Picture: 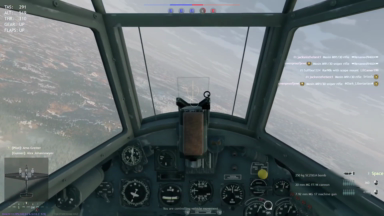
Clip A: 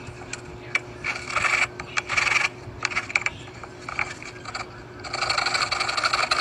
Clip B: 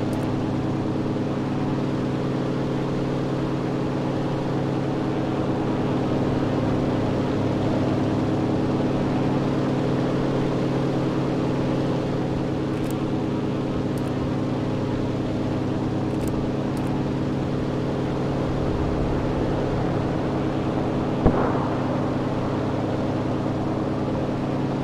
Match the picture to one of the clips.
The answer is B